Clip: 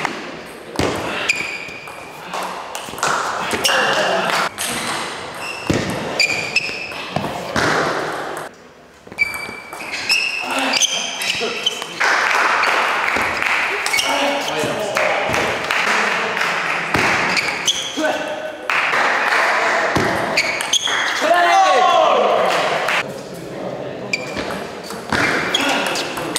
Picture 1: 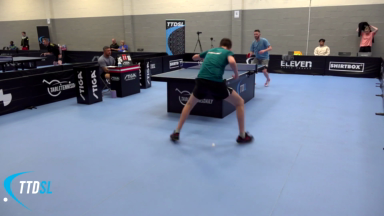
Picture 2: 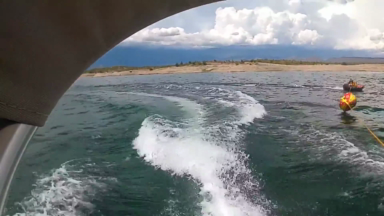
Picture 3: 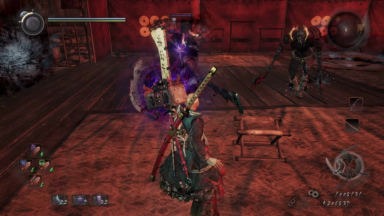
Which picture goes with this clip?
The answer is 1